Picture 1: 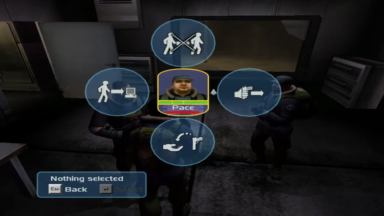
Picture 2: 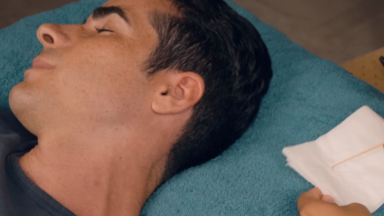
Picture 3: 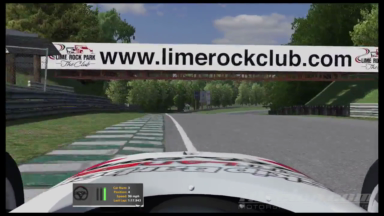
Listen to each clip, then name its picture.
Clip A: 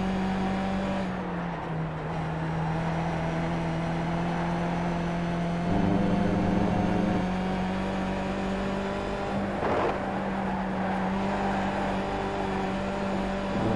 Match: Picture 3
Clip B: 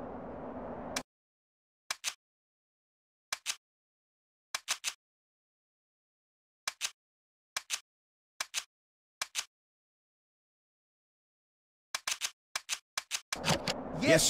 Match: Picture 1